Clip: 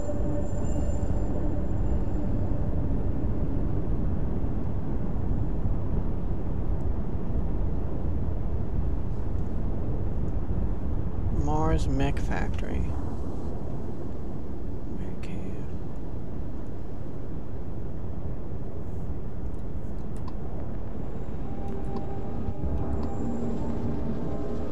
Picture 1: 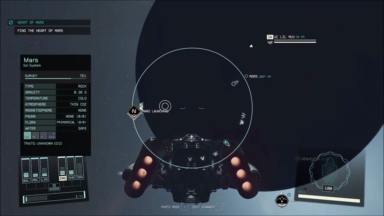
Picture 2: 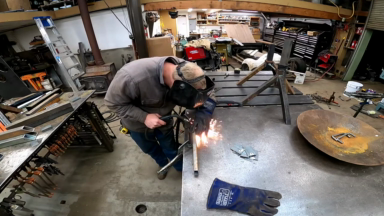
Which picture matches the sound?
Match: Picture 1